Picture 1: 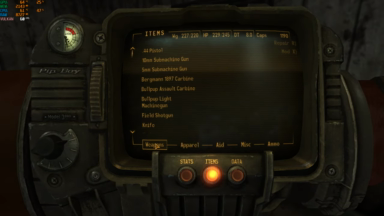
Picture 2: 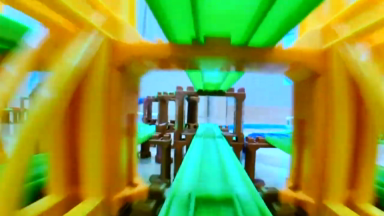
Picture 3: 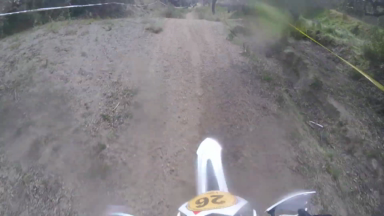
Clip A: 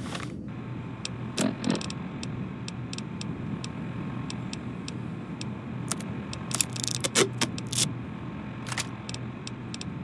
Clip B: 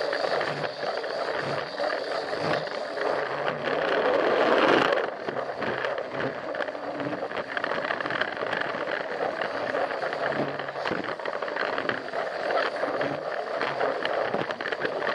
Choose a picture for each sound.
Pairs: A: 1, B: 2